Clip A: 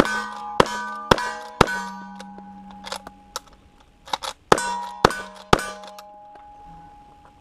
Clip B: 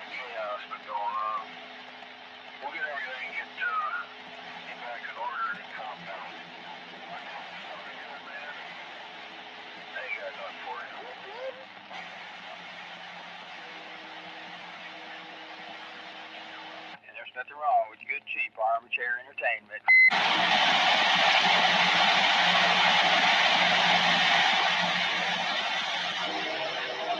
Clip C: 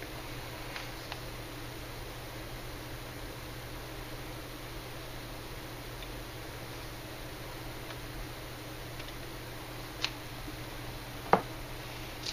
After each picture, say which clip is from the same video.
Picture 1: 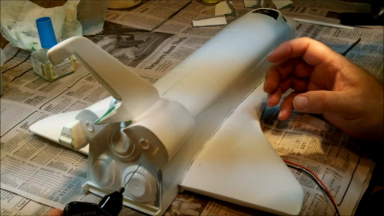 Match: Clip C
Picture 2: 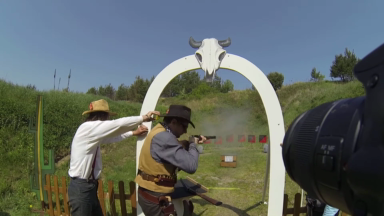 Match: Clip A